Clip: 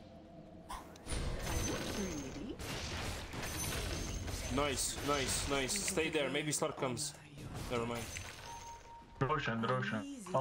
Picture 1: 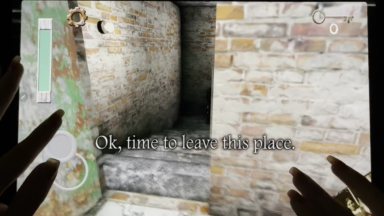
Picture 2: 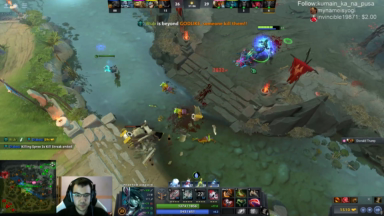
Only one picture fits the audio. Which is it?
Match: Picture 2